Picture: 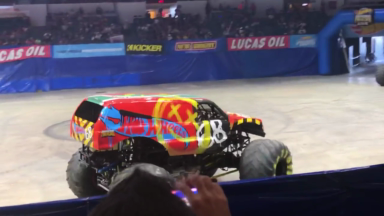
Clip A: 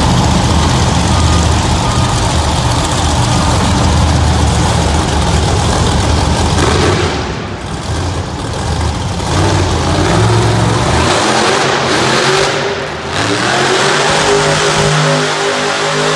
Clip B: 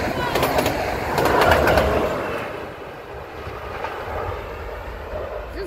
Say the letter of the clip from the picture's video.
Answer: A